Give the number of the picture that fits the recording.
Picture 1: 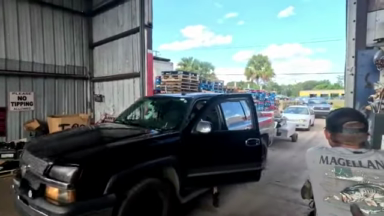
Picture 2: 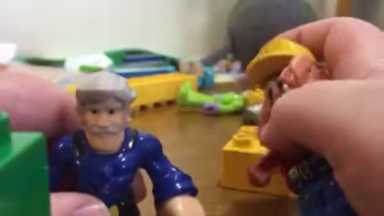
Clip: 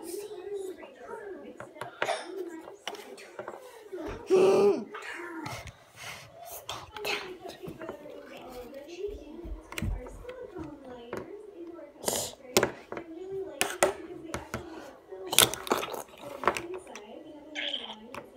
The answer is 2